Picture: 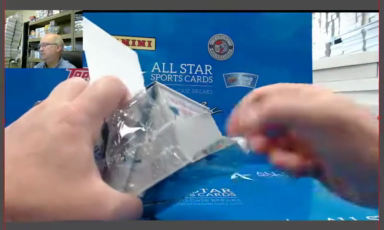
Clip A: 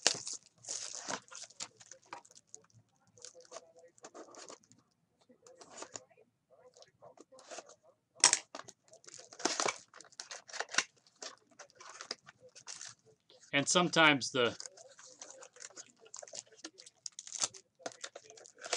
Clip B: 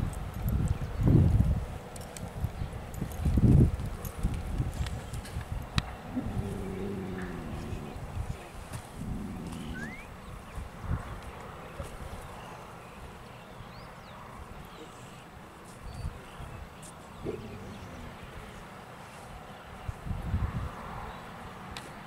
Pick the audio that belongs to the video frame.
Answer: A